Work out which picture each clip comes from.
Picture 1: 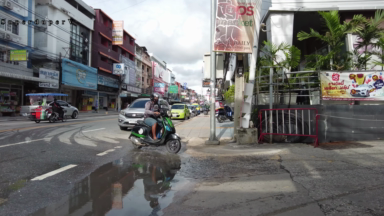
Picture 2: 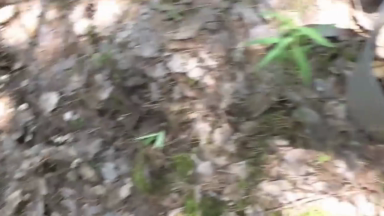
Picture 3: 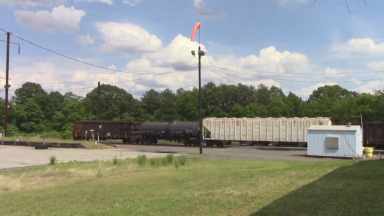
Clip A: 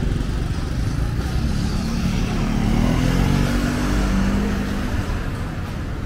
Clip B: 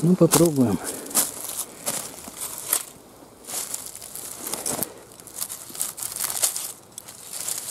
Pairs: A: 1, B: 2